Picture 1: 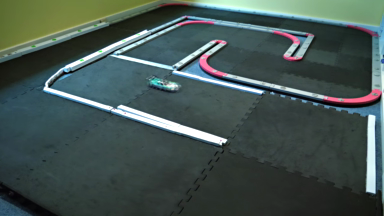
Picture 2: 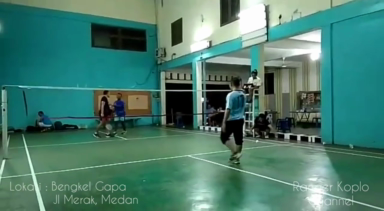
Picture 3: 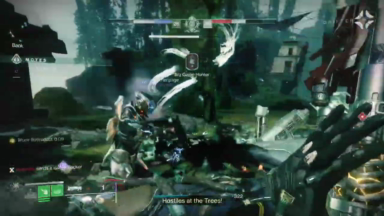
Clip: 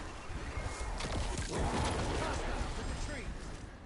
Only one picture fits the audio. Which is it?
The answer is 3